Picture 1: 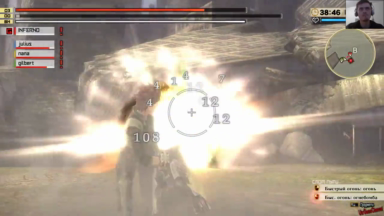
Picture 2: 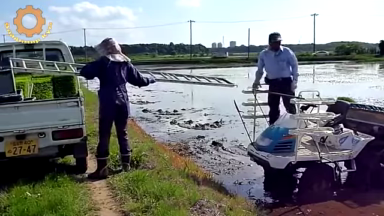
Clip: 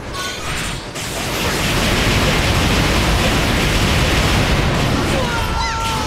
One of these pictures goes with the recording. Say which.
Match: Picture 1